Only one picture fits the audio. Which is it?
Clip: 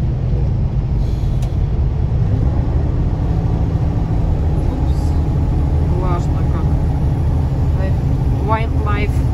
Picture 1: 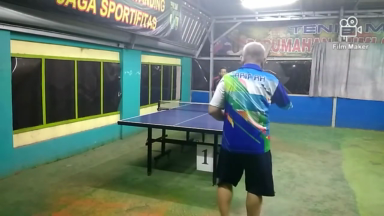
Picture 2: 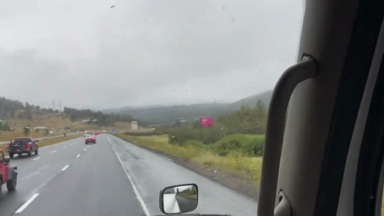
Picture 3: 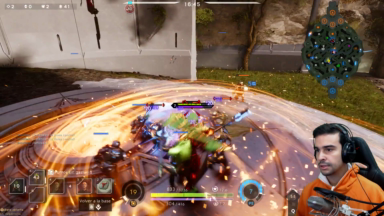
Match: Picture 2